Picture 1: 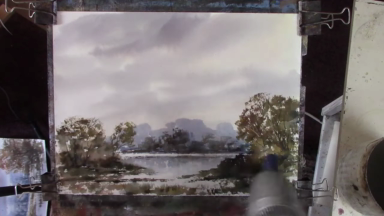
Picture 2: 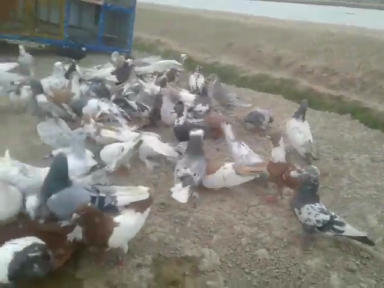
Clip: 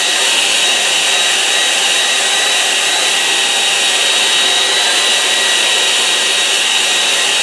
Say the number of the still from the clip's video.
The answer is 1